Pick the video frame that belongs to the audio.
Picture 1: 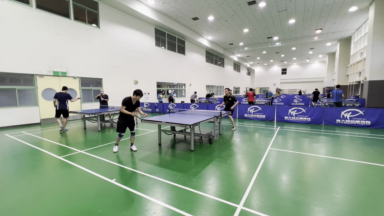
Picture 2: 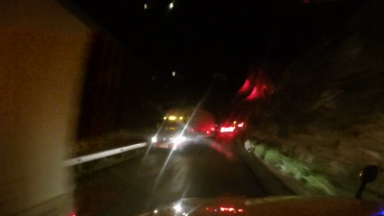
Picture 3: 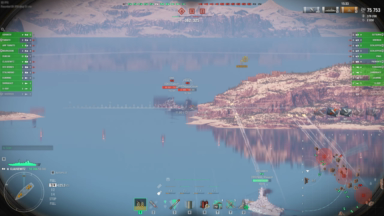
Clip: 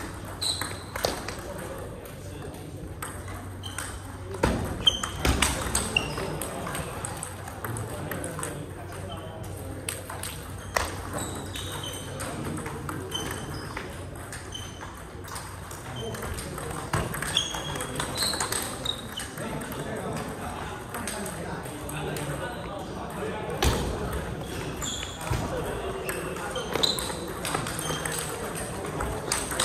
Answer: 1